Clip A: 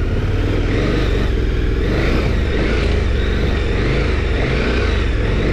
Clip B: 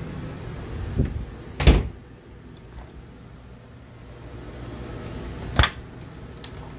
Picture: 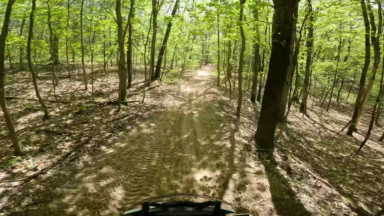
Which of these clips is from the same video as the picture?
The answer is A